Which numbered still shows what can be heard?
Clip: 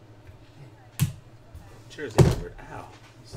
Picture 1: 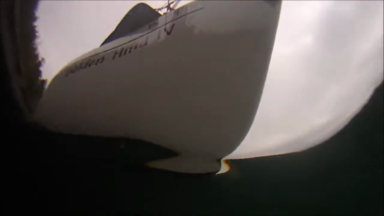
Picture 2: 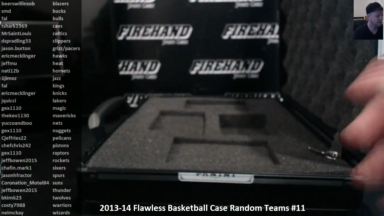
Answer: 2